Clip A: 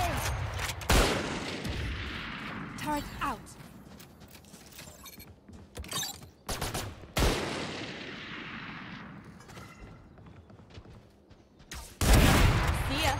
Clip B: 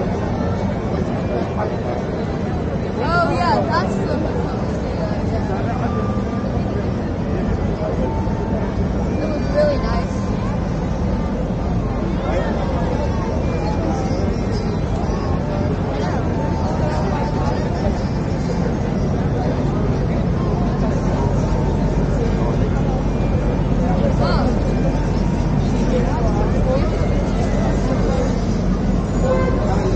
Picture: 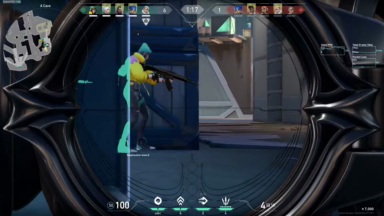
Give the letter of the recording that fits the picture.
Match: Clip A